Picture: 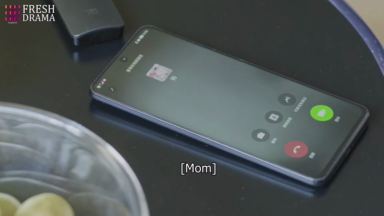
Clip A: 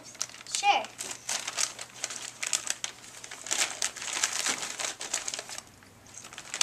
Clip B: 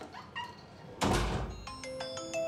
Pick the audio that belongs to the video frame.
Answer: B